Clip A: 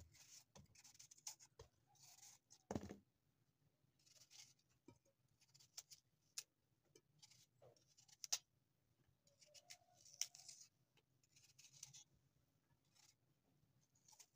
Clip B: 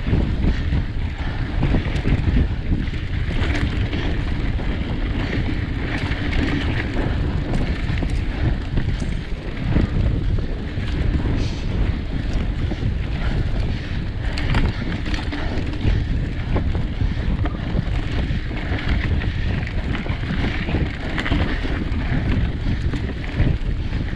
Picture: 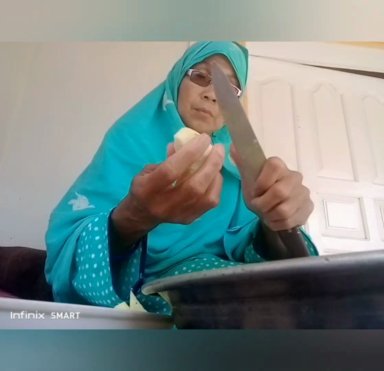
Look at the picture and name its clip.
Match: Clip A